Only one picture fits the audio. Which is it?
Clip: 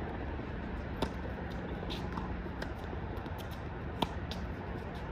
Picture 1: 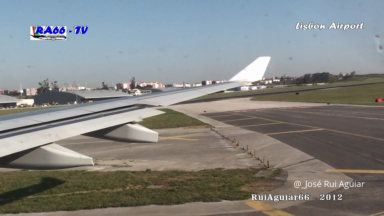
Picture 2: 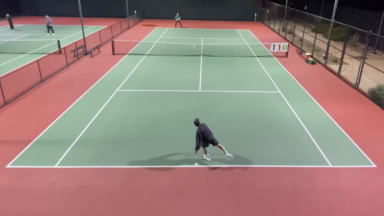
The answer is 2